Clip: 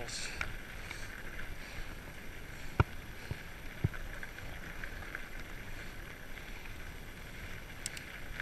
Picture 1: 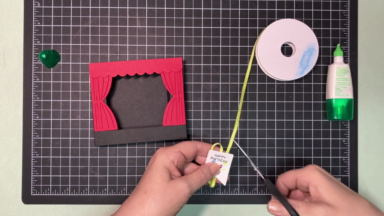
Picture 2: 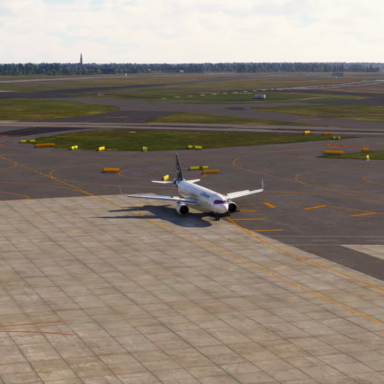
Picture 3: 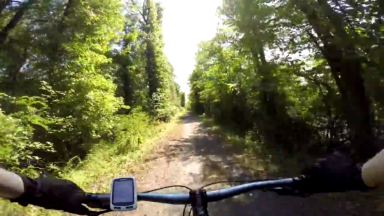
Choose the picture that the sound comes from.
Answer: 3